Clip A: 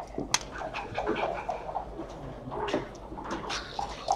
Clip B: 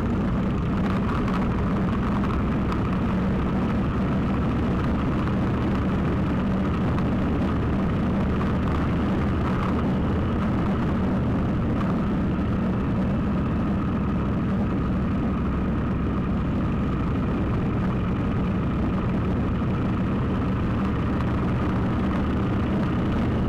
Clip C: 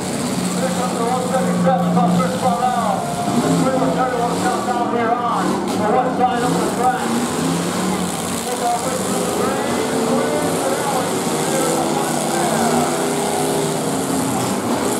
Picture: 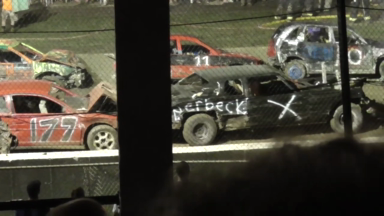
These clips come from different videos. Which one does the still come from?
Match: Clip C